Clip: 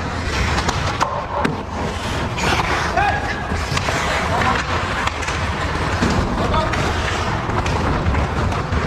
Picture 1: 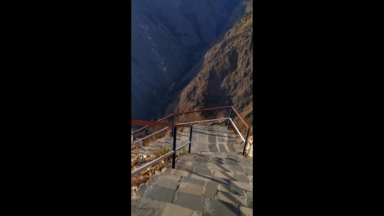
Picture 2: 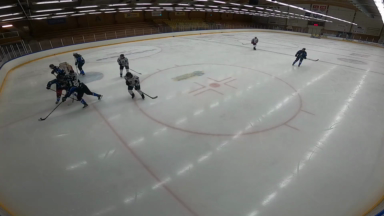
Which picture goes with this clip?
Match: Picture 2